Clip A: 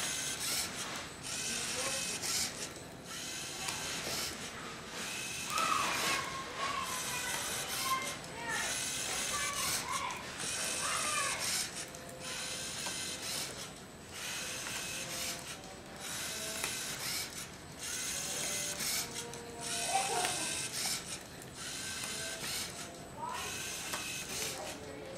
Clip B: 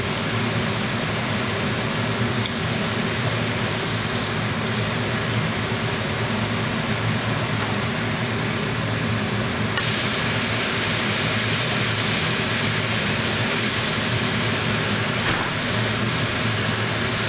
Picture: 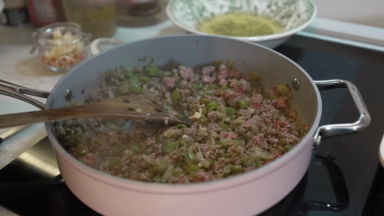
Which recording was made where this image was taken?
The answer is B